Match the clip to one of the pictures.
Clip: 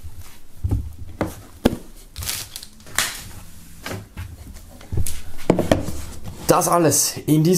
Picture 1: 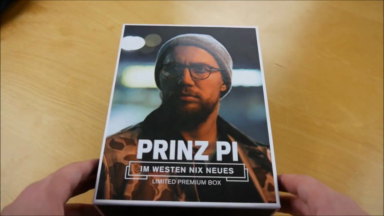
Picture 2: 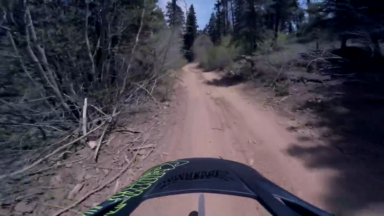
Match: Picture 1